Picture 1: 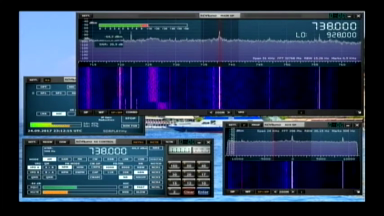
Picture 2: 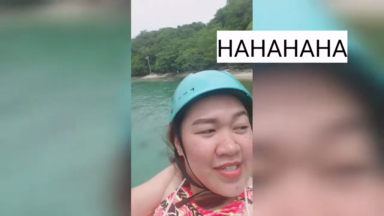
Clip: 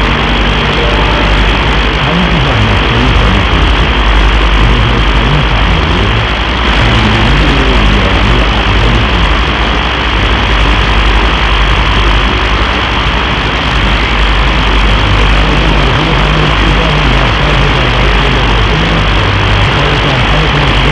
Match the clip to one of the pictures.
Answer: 1